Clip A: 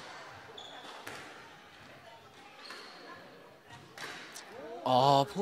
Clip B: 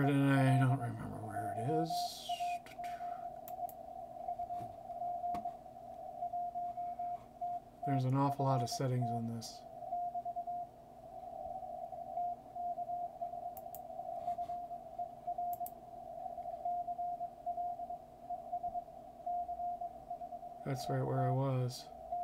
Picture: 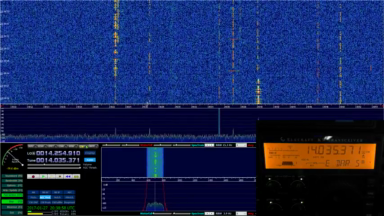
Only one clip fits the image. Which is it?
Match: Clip B